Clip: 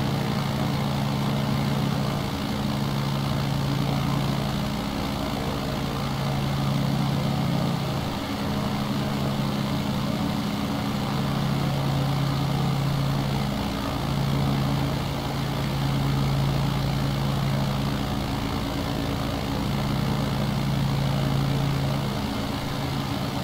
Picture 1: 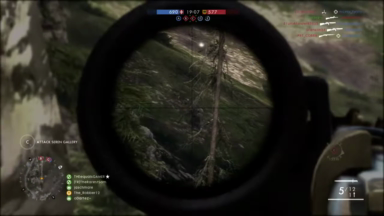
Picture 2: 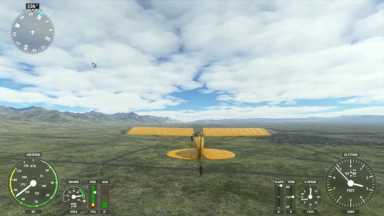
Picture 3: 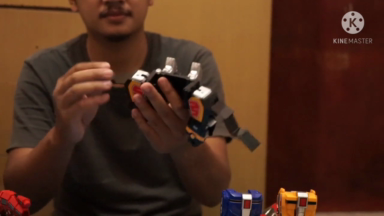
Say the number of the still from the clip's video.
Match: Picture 2